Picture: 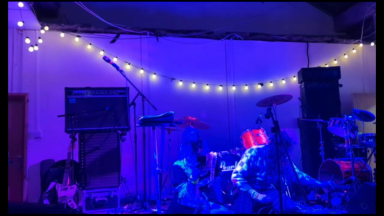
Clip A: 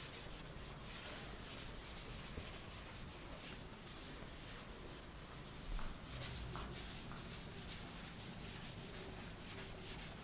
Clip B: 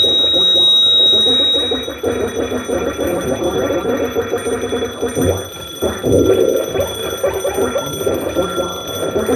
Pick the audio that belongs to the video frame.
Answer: B